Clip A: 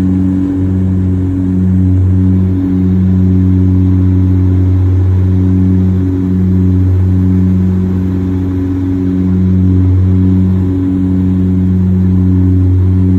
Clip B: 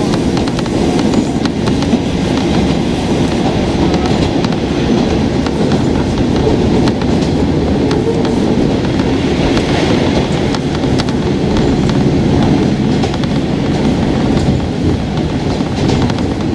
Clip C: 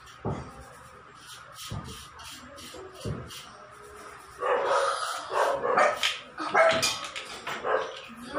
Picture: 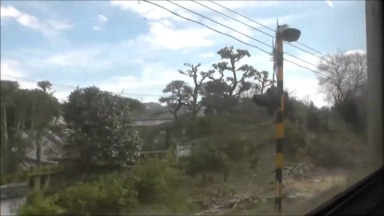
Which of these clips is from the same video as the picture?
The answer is B